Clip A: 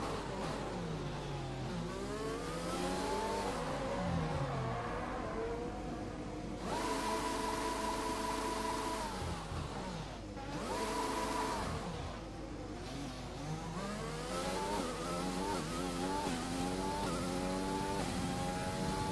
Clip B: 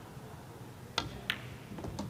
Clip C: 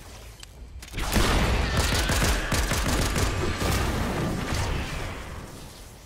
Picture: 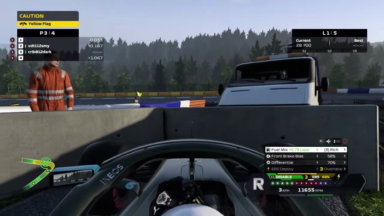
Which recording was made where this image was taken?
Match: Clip A